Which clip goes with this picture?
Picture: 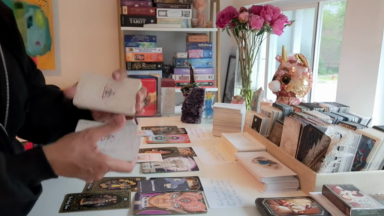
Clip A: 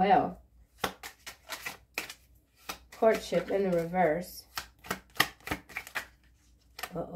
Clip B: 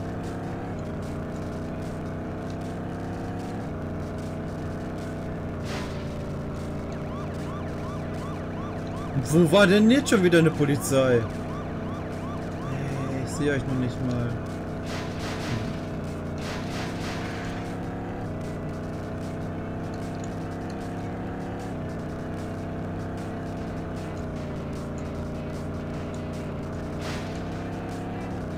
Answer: A